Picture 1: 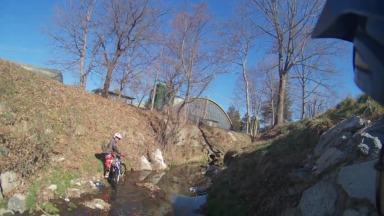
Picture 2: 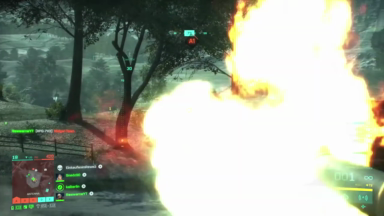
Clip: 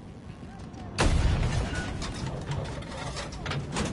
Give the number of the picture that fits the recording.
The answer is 2